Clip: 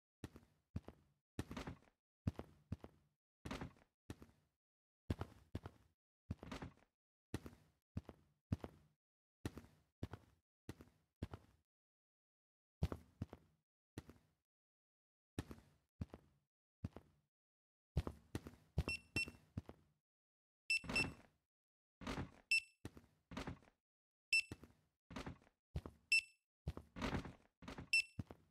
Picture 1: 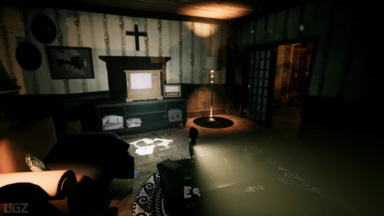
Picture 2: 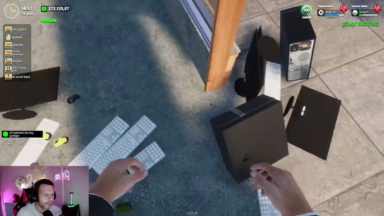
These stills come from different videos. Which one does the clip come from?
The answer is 2